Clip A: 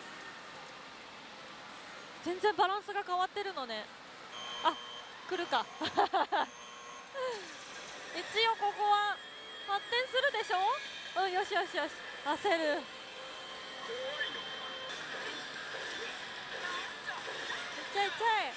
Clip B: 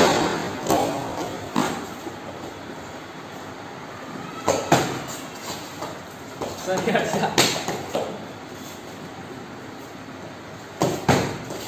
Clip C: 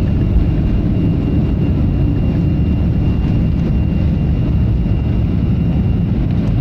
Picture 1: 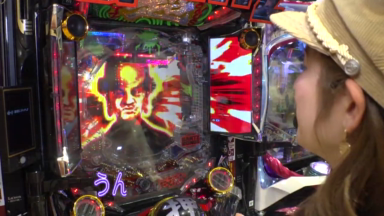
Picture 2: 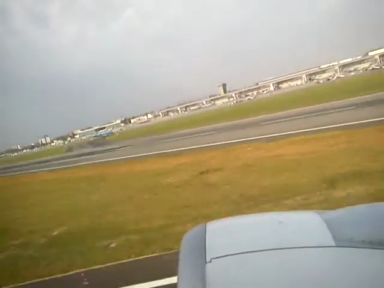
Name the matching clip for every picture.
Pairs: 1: A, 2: C